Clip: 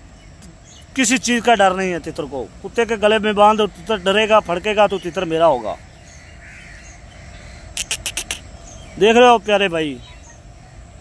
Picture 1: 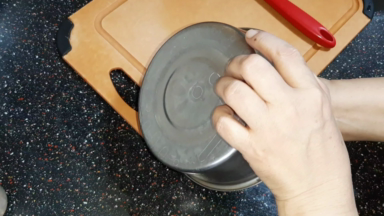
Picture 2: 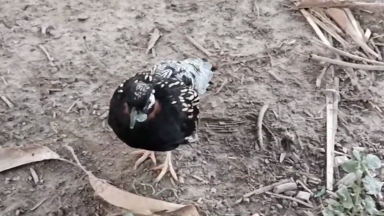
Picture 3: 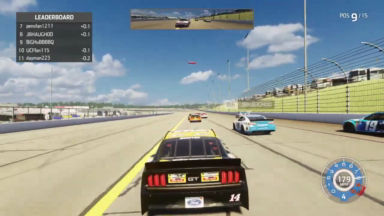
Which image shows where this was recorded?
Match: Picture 2